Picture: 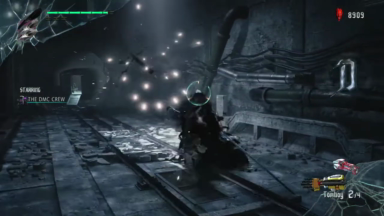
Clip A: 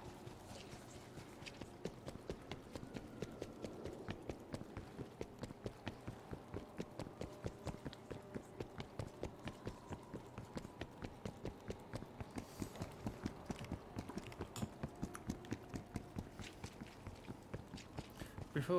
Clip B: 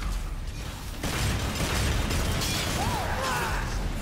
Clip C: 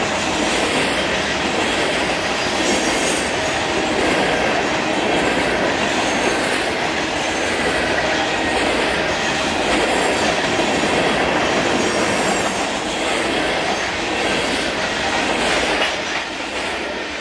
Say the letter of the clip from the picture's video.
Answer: B